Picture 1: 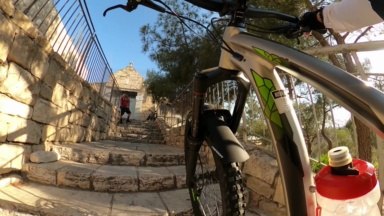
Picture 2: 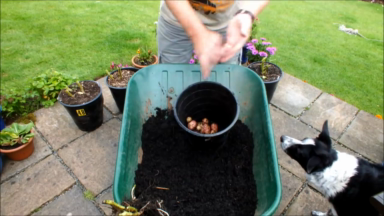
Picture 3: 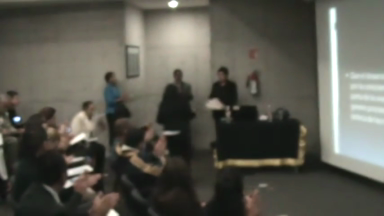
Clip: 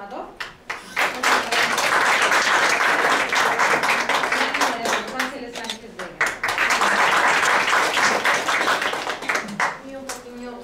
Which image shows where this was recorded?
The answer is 3